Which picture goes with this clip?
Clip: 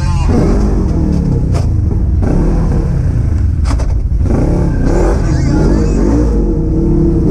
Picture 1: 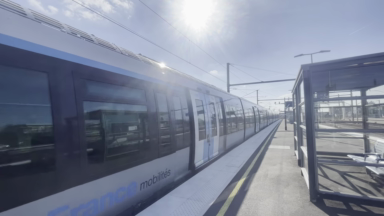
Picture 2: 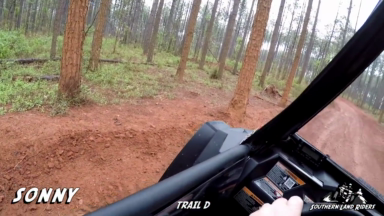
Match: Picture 2